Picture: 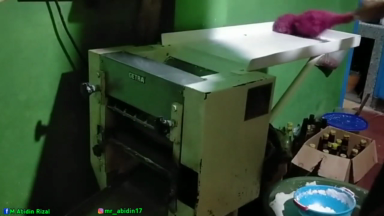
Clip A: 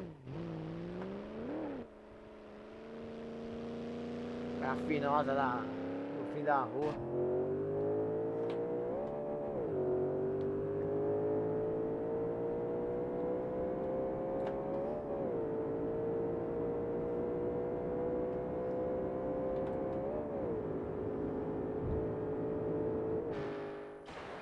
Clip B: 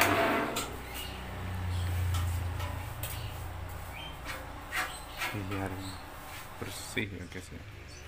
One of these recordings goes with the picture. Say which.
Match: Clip B